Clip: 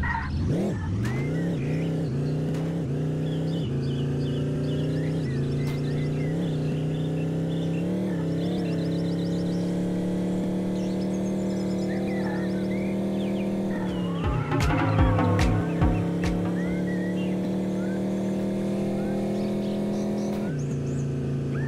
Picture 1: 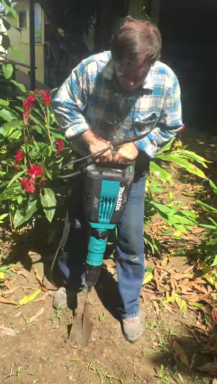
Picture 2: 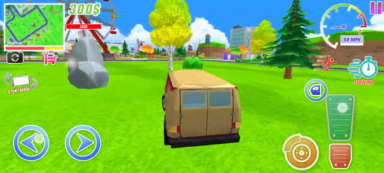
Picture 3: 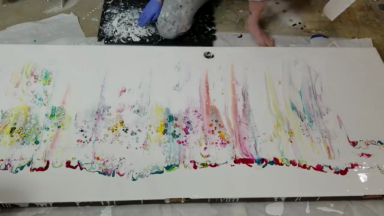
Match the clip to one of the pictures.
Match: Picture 2